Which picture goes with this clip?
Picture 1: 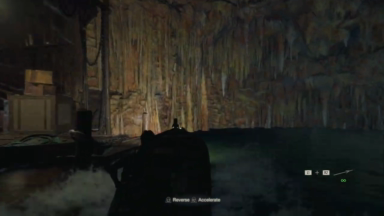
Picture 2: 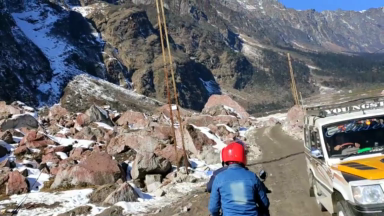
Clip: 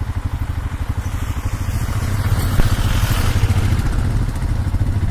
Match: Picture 2